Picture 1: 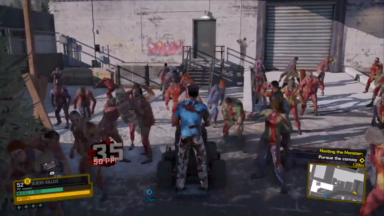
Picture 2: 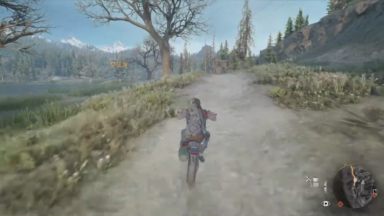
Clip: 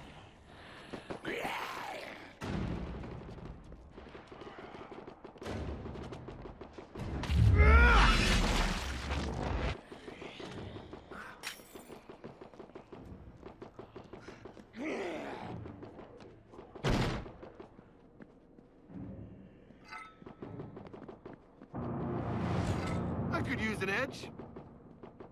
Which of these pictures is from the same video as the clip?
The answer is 1